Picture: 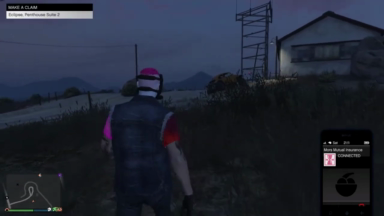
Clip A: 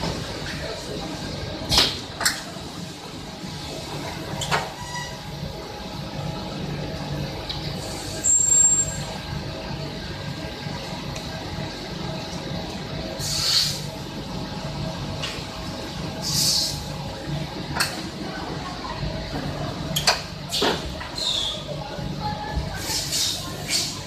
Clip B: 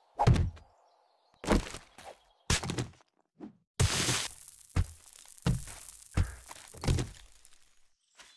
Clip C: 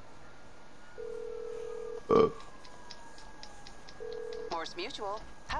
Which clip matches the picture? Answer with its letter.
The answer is C